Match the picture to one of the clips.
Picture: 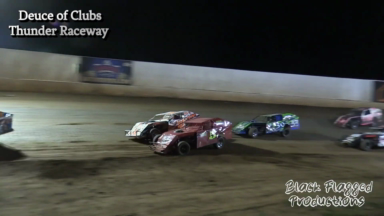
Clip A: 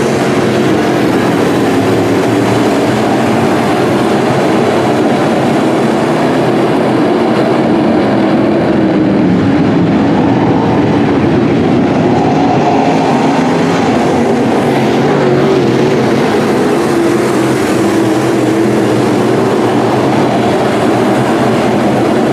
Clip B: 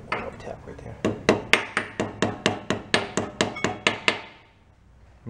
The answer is A